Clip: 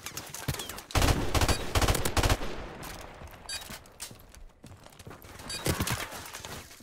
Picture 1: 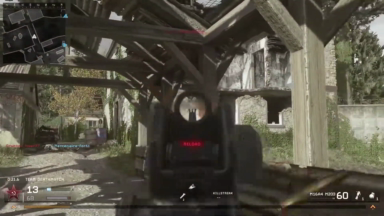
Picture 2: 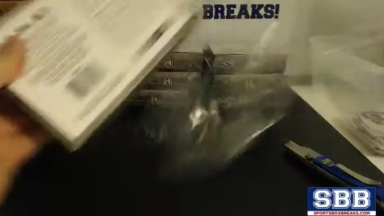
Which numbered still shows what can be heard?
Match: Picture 1